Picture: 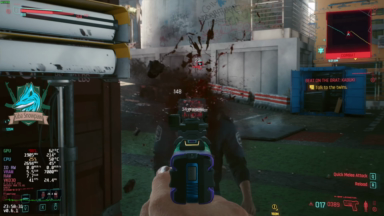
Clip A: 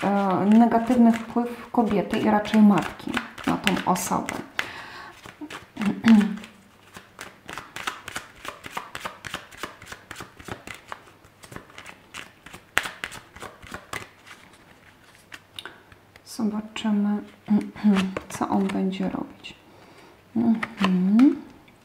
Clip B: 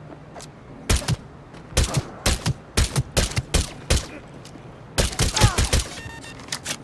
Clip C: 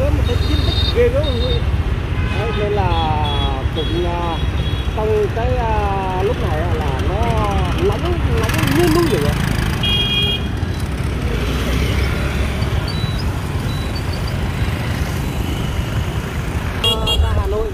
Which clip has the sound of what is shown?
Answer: B